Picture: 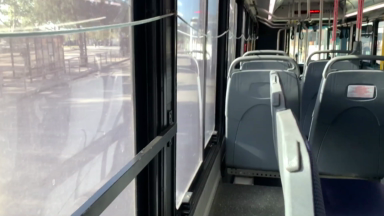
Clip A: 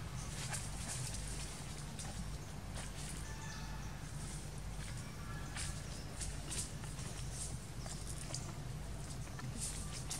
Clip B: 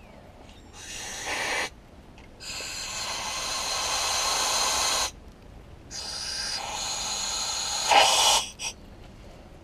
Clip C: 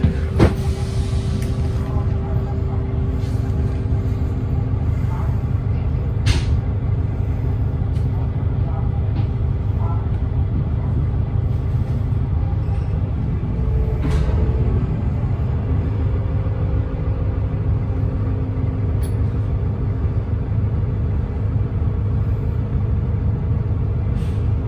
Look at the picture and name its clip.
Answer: C